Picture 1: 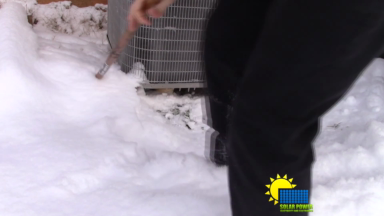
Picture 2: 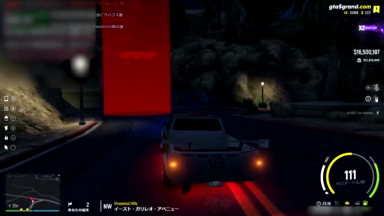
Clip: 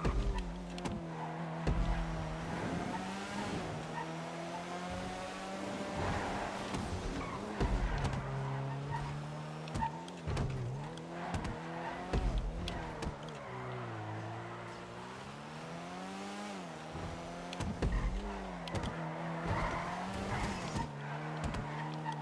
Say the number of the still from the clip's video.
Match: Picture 2